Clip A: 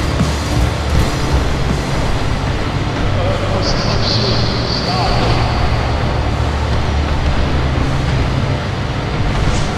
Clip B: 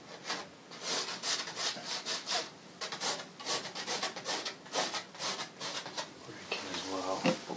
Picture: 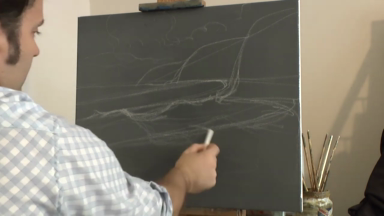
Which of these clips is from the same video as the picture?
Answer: B